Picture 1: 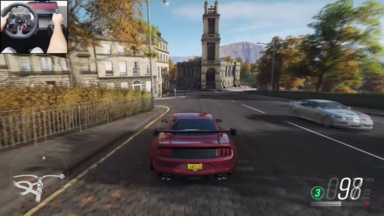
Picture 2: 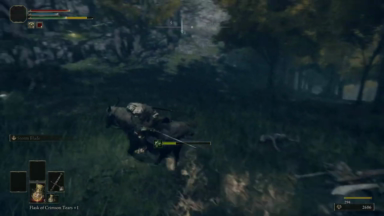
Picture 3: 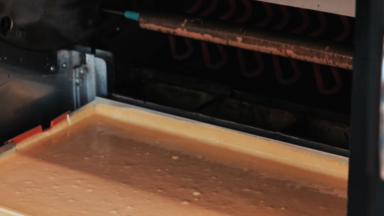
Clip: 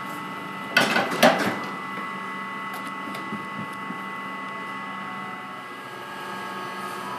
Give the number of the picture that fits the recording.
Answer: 3